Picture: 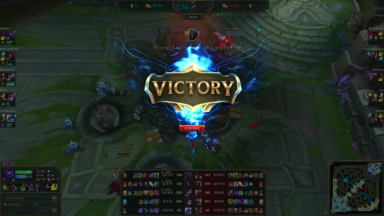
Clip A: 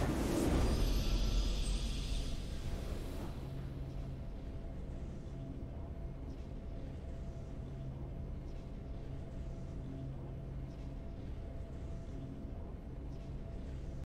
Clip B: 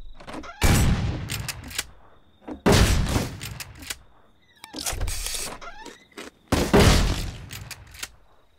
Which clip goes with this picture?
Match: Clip A